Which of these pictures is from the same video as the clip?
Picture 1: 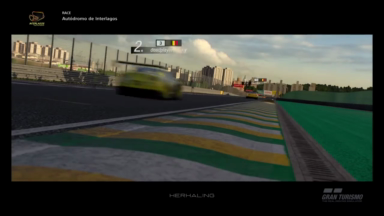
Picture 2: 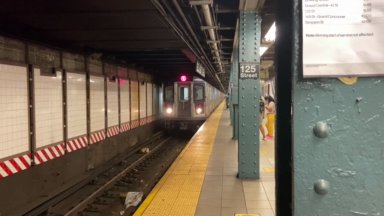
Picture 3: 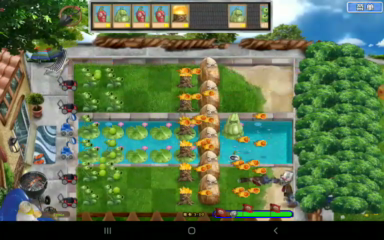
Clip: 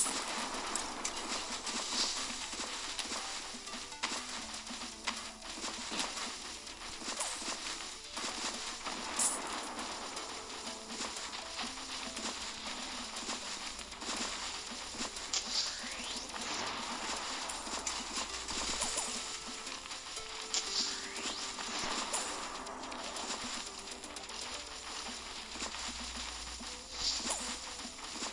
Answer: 3